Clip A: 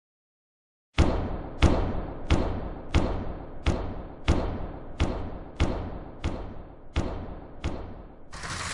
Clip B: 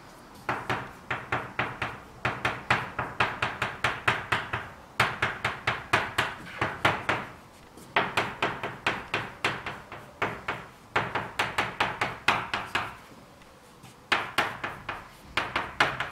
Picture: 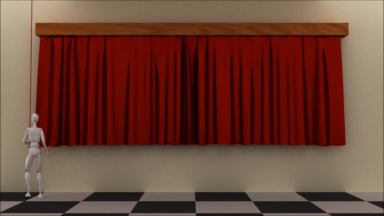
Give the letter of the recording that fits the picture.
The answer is A